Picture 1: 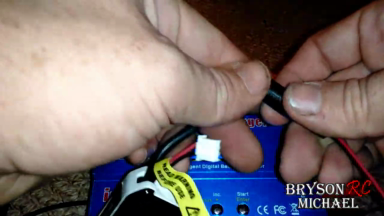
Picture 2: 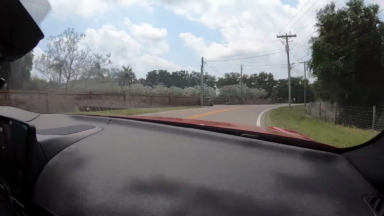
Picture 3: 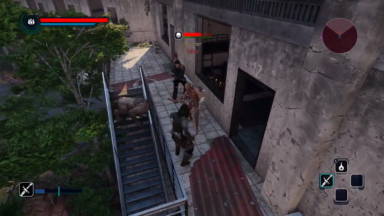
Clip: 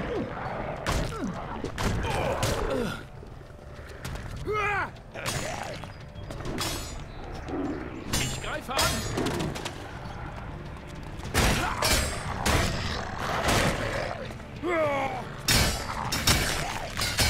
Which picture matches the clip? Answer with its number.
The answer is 3